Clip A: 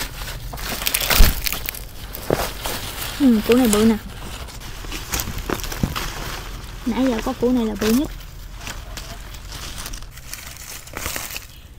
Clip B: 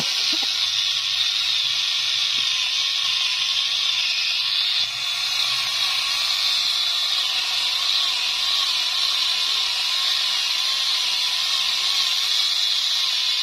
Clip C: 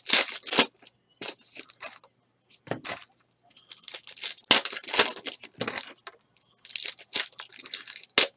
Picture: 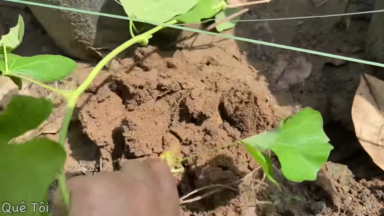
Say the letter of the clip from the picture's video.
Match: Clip A